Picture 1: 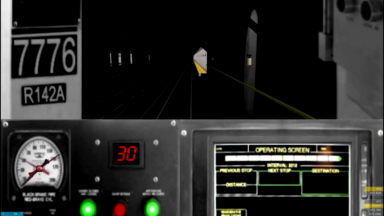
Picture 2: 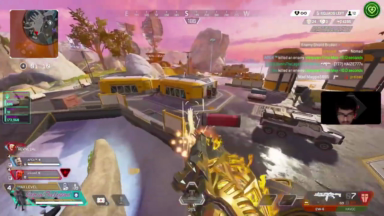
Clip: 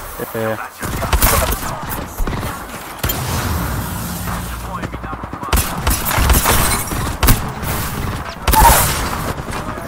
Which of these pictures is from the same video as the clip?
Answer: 2